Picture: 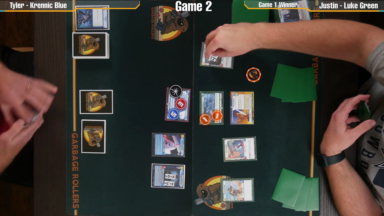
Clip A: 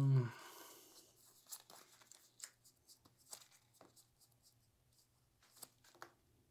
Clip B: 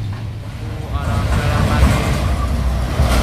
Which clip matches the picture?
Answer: A